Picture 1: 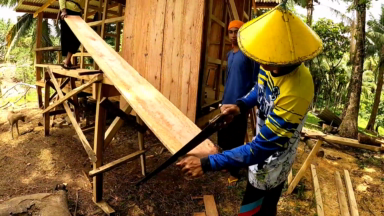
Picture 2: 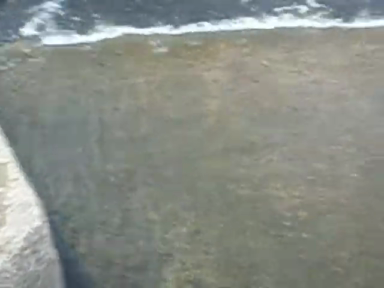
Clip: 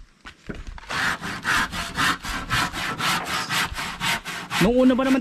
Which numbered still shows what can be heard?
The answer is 1